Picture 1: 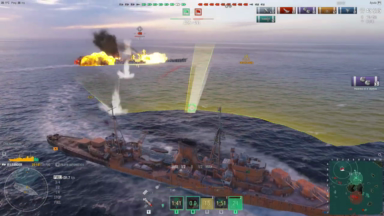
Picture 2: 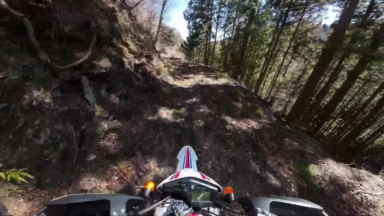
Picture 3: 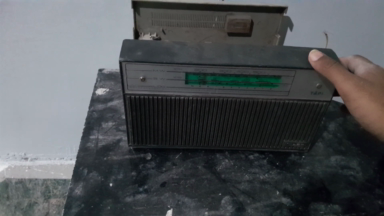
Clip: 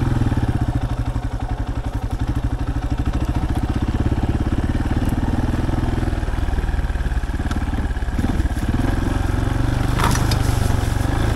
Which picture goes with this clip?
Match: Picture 2